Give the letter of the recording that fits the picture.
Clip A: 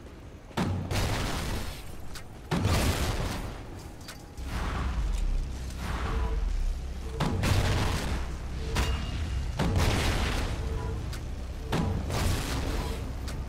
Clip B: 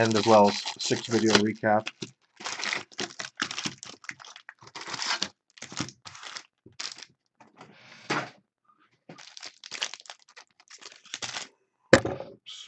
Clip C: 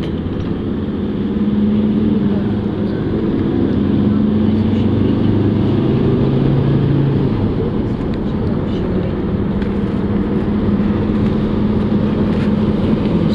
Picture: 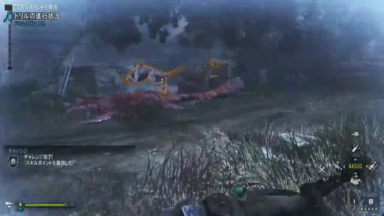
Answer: A